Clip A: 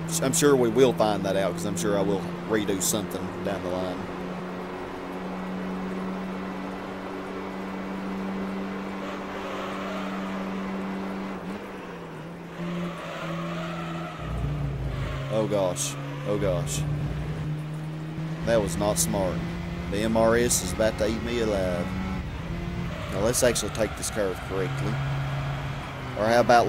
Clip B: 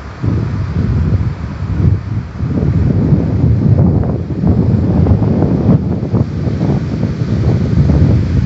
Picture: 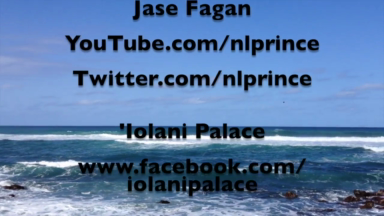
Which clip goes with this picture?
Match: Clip B